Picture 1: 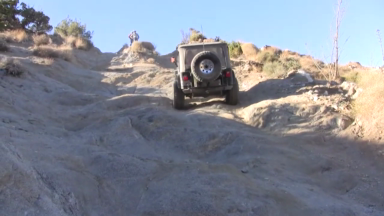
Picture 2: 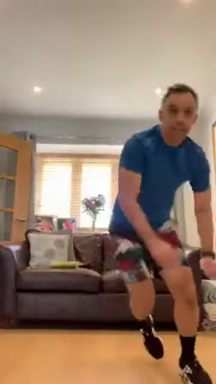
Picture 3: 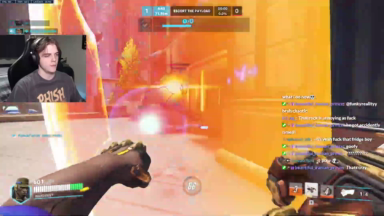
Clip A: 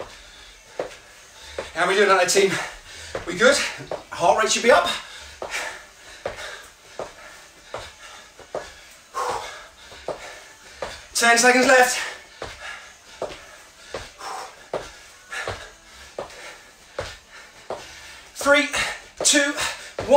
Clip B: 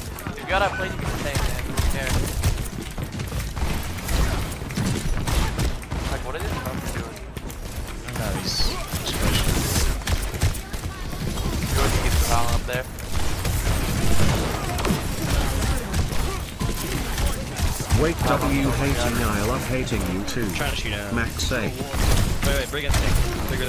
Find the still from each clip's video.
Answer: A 2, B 3